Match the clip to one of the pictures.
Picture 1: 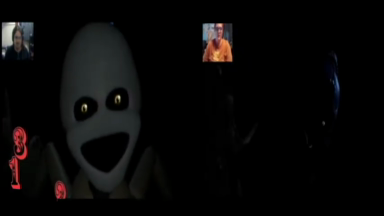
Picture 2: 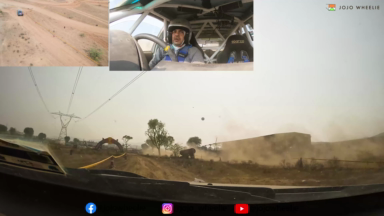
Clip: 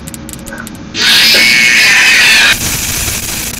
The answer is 1